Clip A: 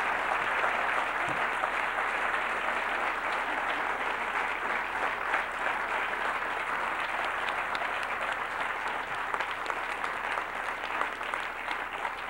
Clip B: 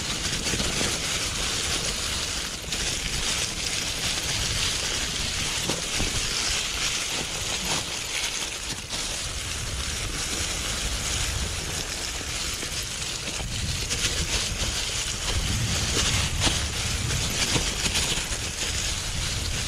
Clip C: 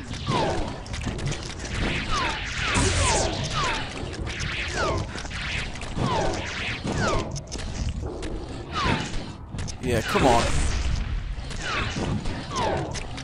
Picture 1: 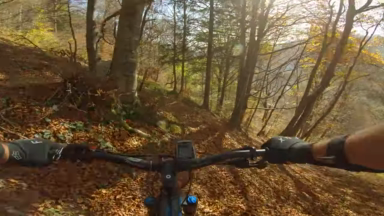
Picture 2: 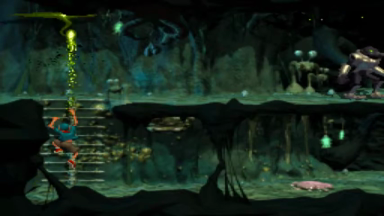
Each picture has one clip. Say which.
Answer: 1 B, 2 C